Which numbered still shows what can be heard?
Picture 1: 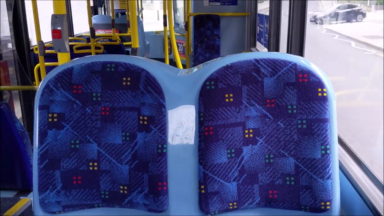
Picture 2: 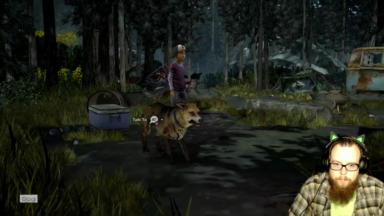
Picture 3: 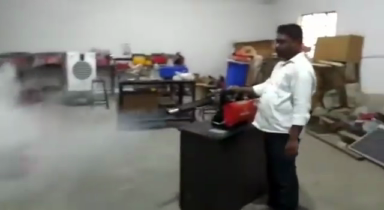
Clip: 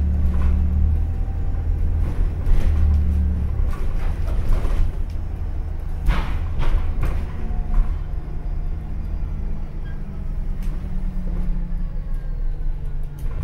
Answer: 1